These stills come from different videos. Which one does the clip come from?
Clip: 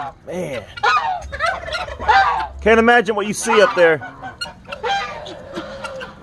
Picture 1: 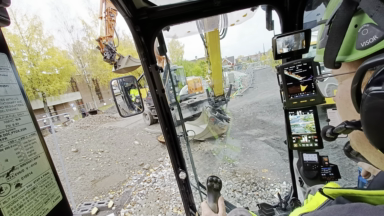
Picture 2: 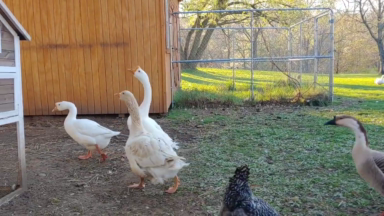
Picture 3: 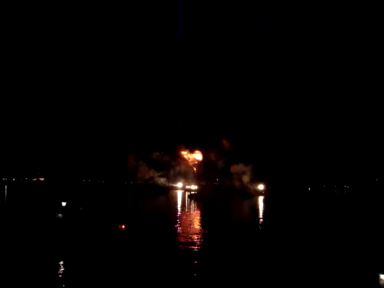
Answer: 2